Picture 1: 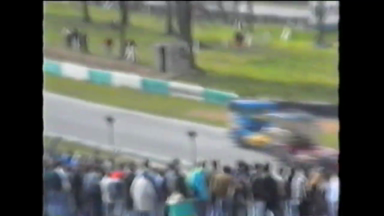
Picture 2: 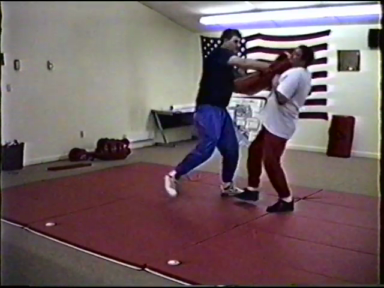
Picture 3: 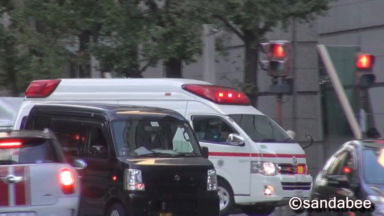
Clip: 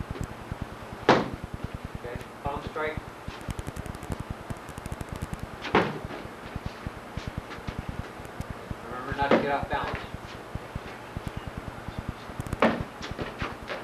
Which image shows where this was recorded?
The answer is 2